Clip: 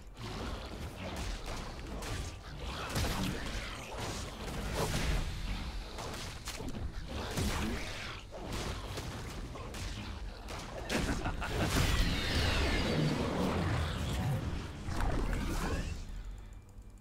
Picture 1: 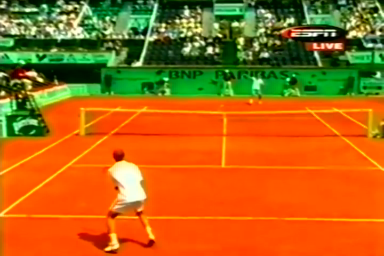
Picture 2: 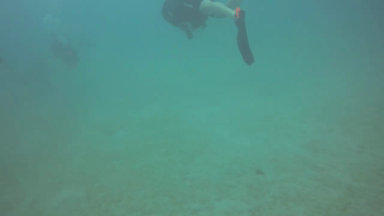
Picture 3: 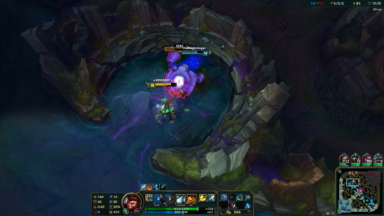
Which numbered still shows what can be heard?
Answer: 3